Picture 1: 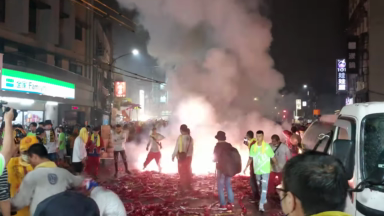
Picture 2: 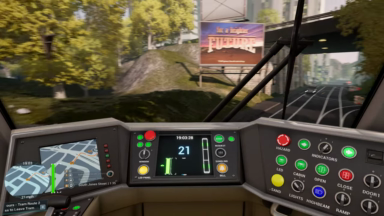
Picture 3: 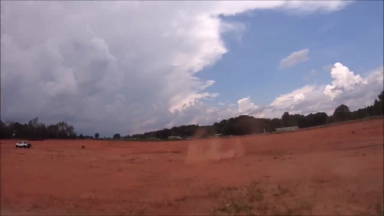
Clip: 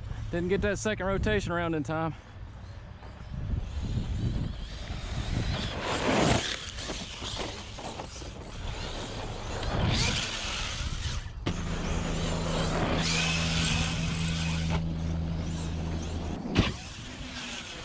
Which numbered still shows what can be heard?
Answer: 3